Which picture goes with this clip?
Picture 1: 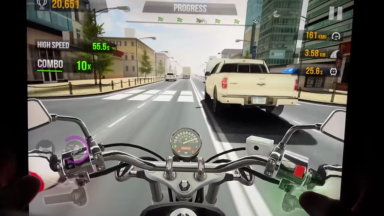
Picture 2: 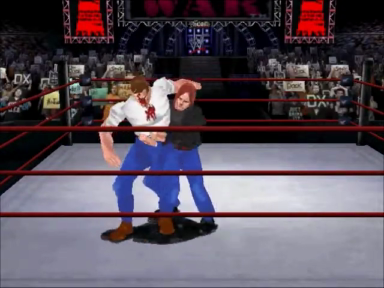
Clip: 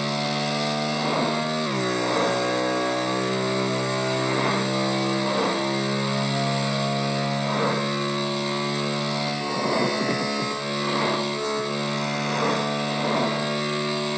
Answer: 1